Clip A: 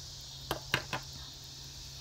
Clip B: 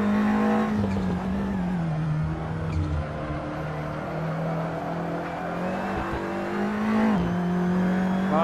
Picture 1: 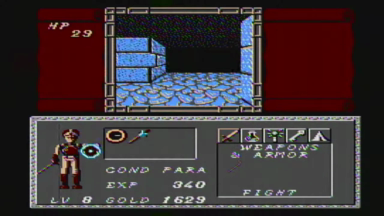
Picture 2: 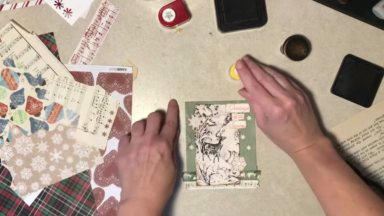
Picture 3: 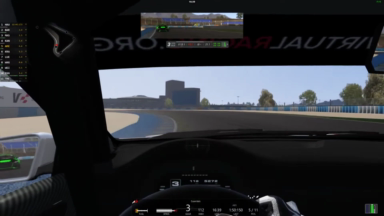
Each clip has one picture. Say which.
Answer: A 2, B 3